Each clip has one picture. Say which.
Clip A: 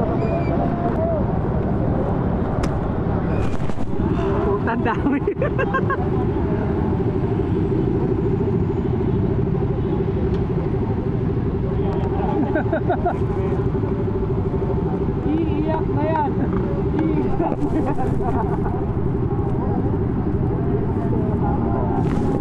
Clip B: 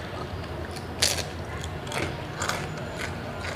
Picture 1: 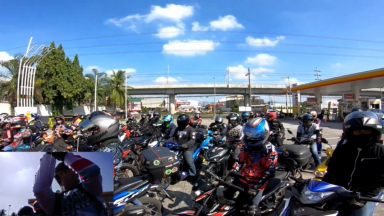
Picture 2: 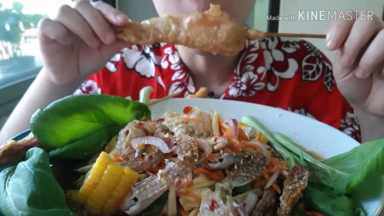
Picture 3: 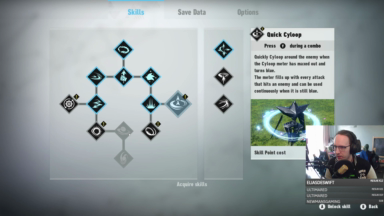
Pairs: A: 1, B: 2